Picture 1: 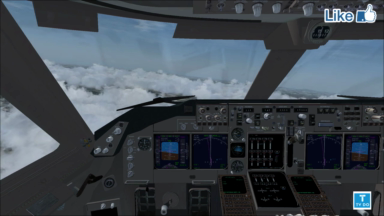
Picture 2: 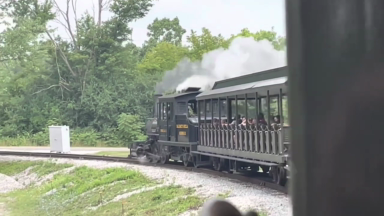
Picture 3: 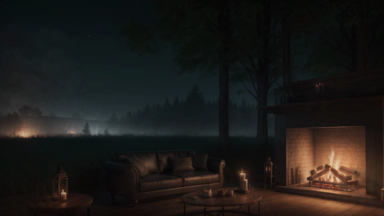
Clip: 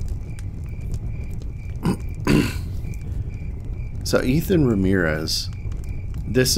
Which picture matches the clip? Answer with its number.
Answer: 3